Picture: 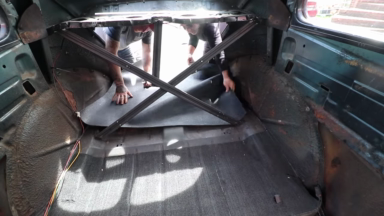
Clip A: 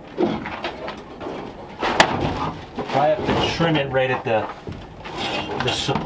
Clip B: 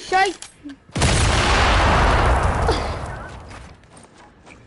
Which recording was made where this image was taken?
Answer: A